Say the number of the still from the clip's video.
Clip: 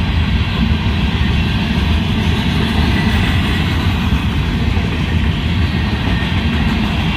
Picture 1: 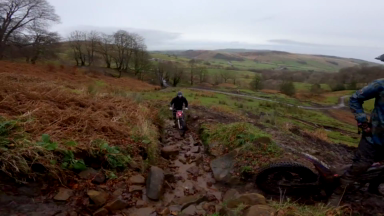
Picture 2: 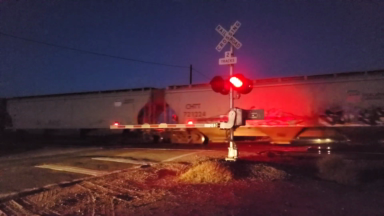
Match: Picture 2